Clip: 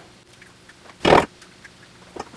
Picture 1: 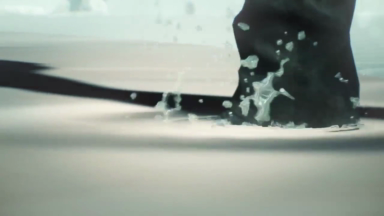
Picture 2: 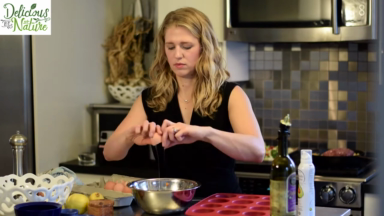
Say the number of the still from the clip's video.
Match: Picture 2